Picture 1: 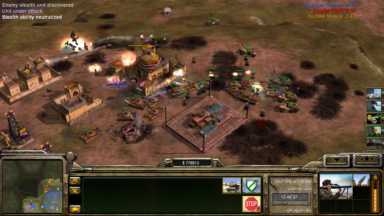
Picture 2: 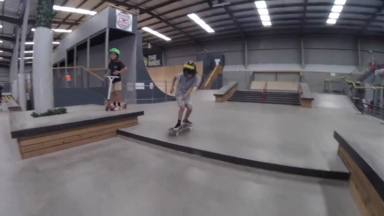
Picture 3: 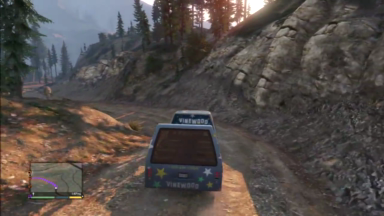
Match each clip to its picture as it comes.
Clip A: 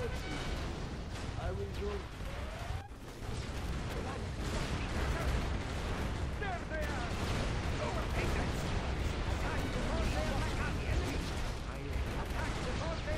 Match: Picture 1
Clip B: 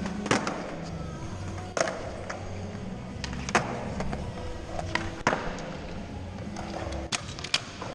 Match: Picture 2